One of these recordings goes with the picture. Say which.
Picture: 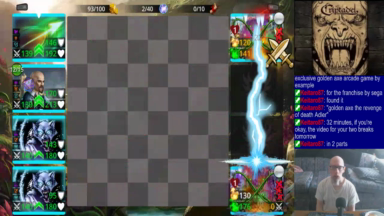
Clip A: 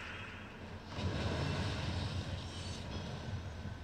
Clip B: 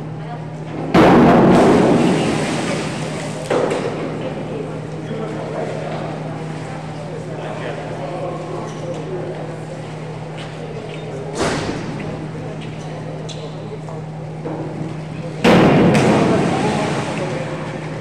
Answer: A